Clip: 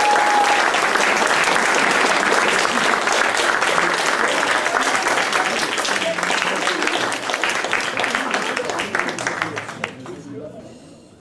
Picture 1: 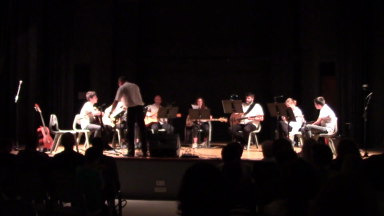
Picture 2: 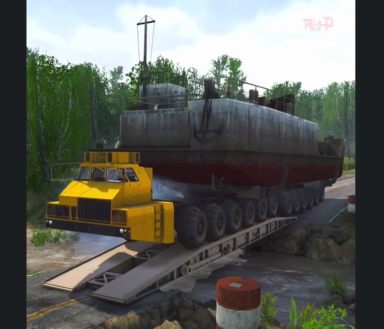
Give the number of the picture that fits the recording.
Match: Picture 1